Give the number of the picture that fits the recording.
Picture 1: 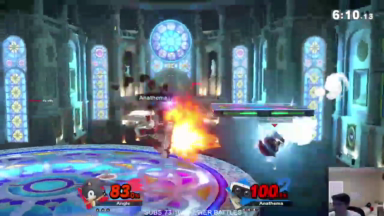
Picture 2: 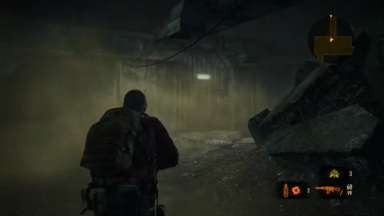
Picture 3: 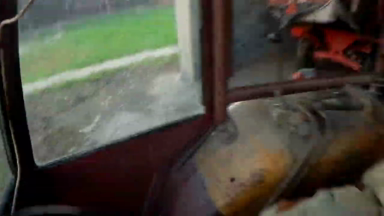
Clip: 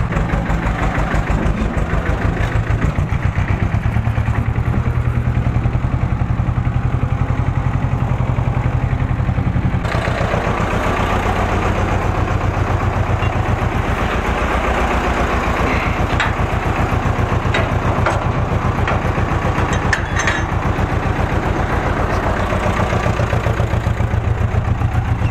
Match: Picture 3